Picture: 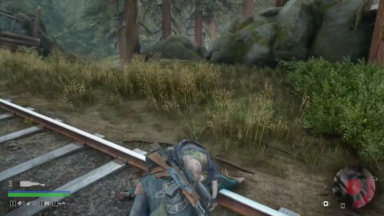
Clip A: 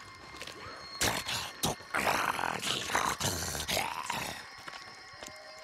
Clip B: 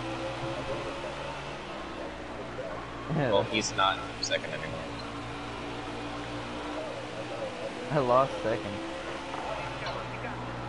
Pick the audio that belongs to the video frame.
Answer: A